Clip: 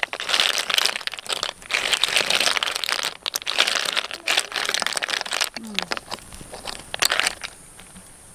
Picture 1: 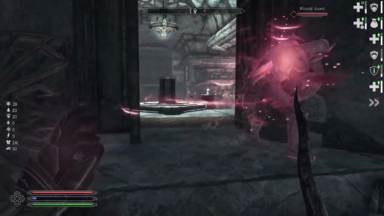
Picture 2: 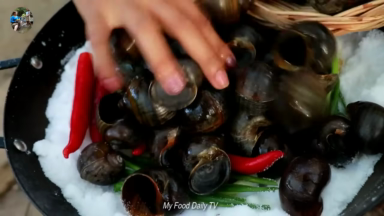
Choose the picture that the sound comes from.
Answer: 2